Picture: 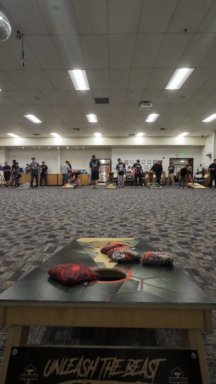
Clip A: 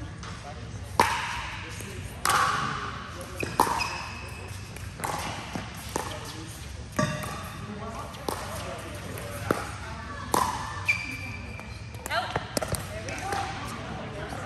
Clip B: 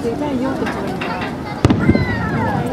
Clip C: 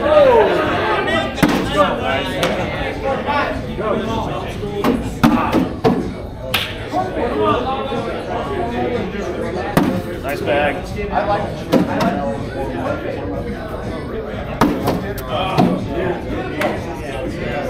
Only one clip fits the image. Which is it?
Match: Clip C